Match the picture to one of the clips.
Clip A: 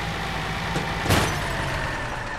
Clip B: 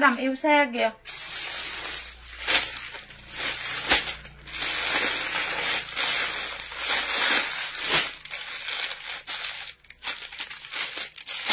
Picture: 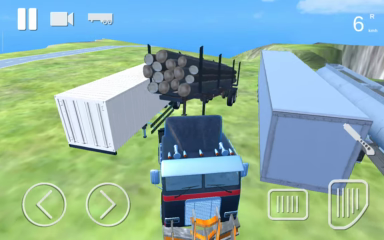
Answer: A